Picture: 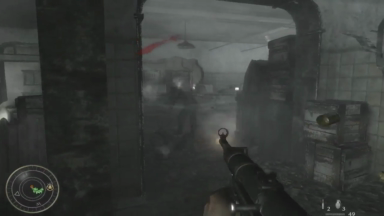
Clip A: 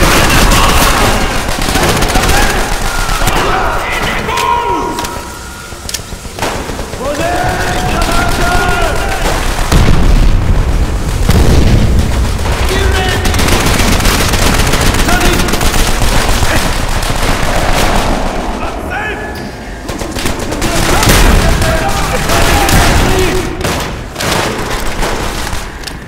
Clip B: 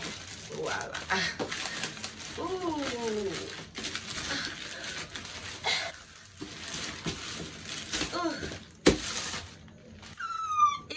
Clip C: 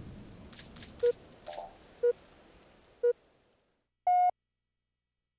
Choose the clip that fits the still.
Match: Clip A